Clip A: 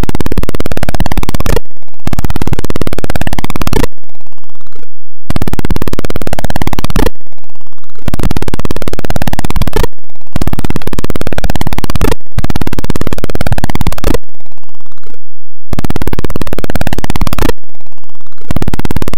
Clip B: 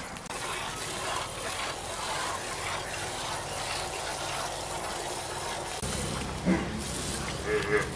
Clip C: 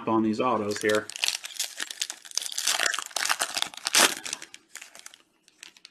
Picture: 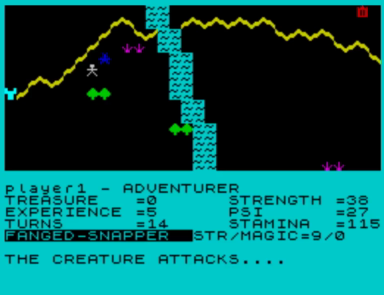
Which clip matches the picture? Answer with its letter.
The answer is A